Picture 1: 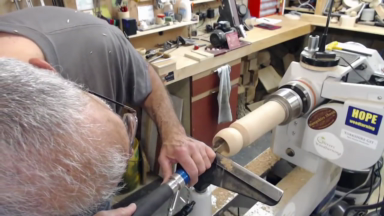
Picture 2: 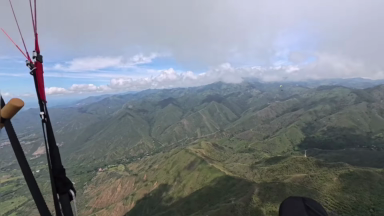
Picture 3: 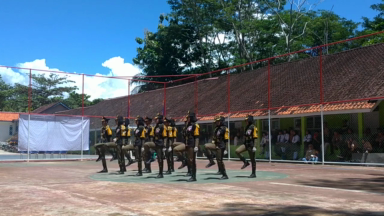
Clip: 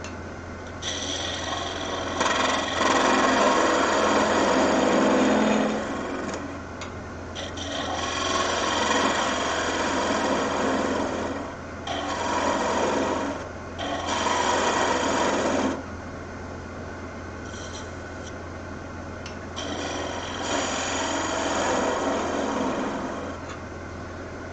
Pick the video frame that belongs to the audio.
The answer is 1